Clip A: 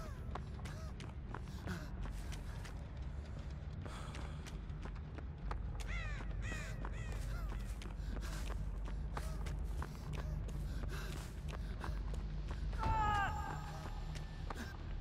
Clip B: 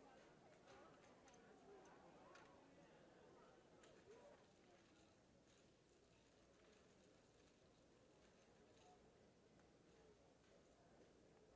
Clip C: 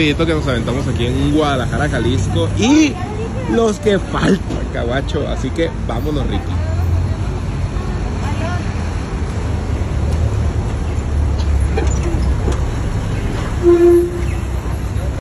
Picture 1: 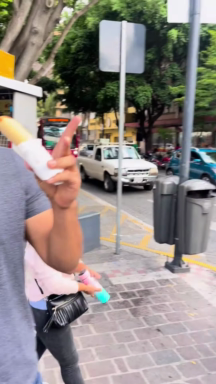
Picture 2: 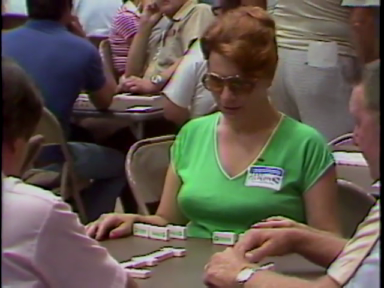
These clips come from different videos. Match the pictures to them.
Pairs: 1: C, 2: B